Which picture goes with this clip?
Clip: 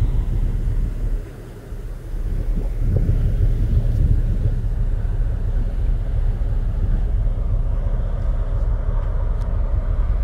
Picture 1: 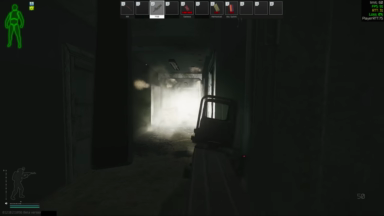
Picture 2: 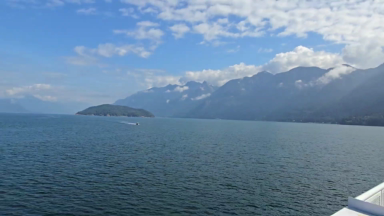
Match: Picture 2